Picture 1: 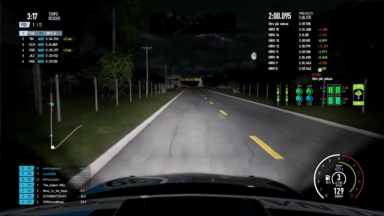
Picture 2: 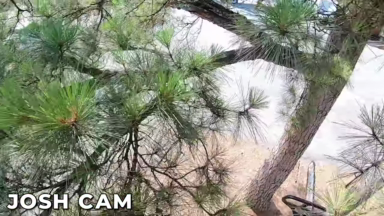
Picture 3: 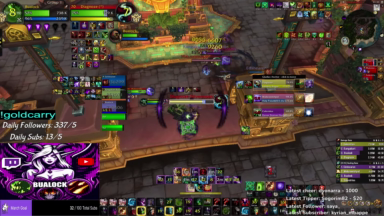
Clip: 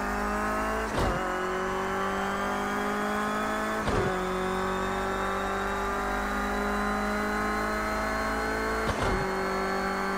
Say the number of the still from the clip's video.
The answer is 1